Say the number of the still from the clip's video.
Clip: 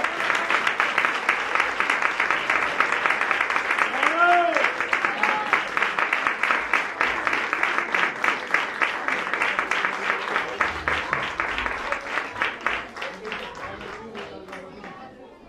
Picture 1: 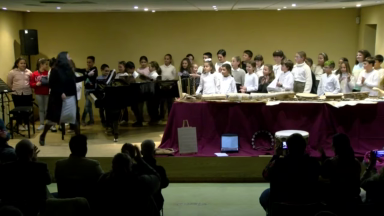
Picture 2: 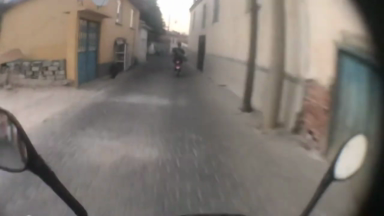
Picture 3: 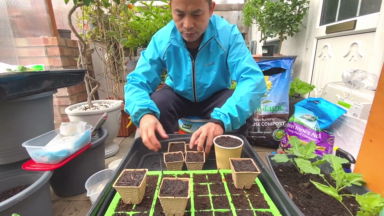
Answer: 1